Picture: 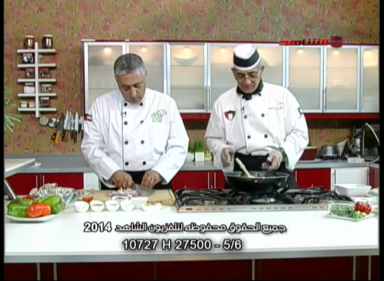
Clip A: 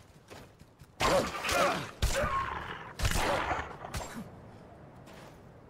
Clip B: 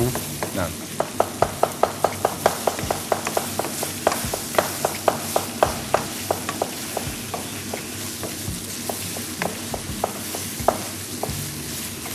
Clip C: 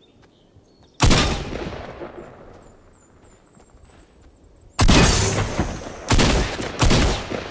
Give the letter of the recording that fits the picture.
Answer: B